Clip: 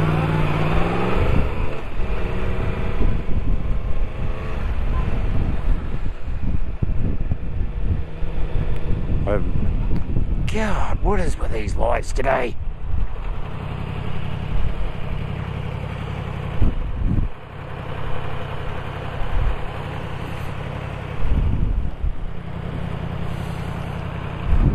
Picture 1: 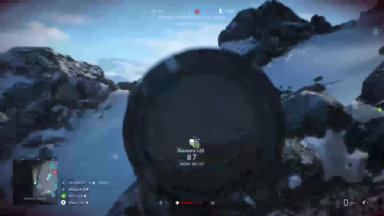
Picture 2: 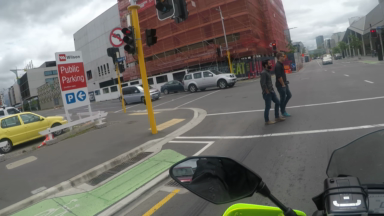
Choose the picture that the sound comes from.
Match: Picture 2